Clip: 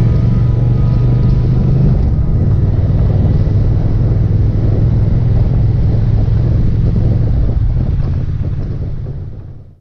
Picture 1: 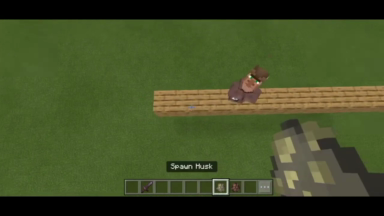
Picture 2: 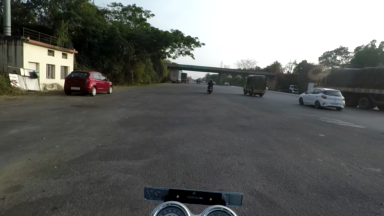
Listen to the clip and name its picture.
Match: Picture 2